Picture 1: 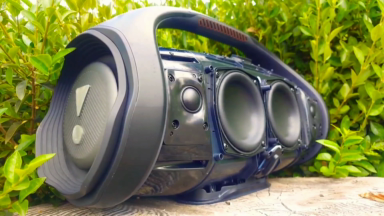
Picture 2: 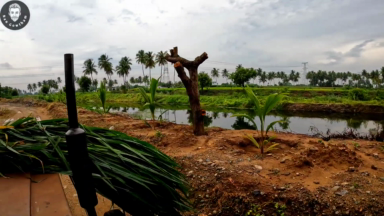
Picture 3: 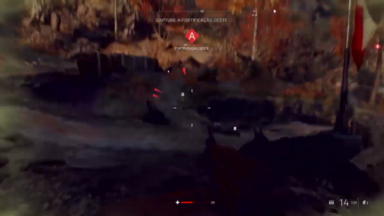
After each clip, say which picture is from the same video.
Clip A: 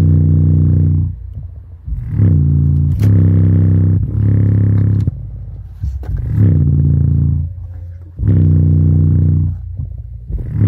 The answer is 1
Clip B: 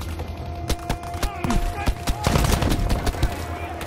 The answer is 3